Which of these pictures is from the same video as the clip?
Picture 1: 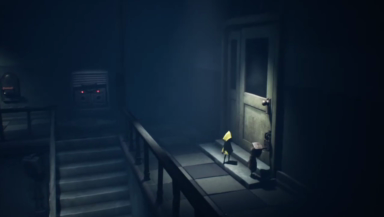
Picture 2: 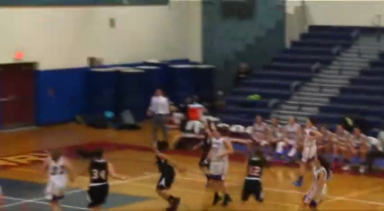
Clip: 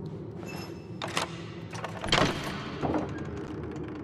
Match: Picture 1